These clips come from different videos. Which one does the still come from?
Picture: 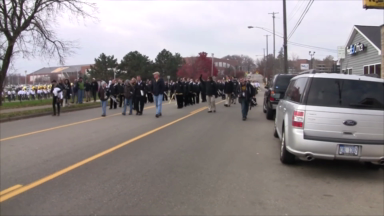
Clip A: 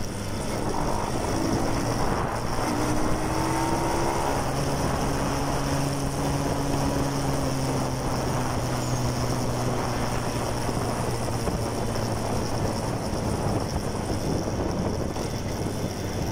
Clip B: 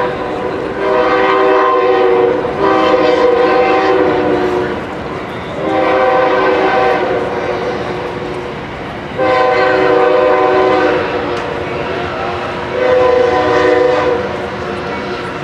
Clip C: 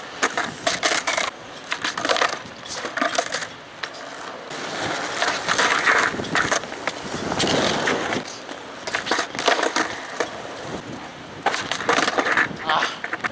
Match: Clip B